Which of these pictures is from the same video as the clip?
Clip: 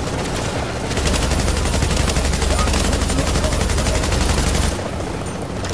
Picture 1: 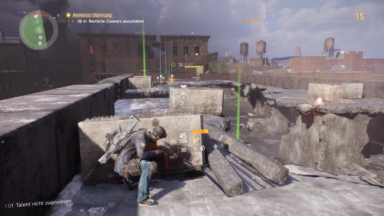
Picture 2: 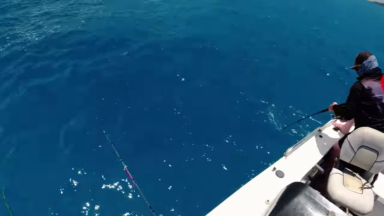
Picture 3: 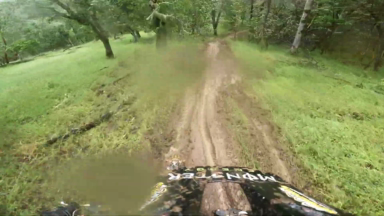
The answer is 1